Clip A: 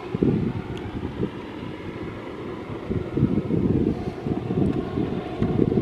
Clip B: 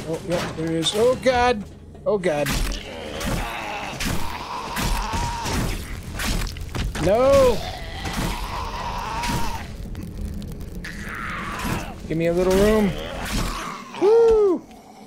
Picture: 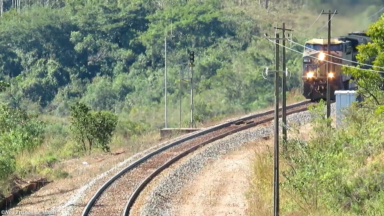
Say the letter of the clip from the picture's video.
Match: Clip A